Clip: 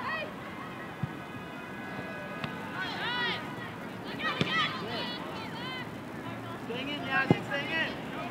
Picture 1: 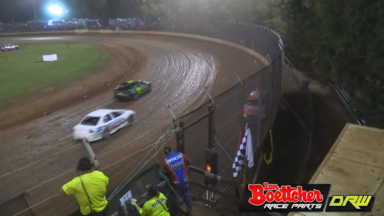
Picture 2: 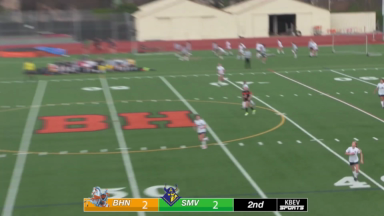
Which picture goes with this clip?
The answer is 2